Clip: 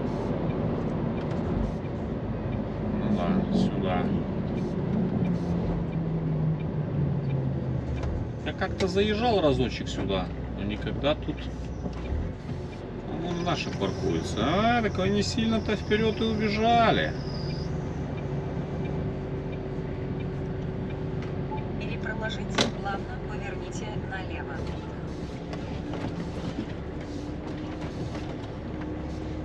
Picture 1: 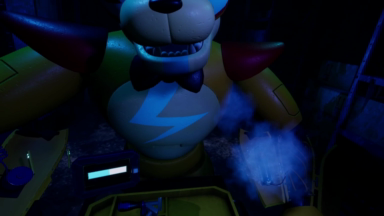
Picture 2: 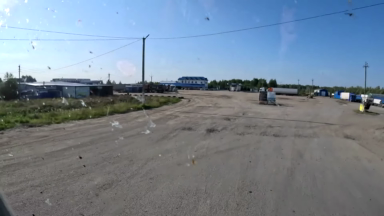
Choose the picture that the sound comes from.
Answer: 2